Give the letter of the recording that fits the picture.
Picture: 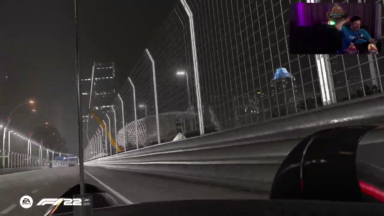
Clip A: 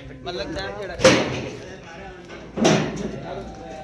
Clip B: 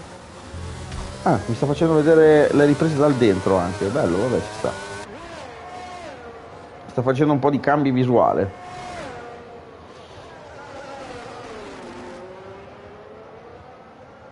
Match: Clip B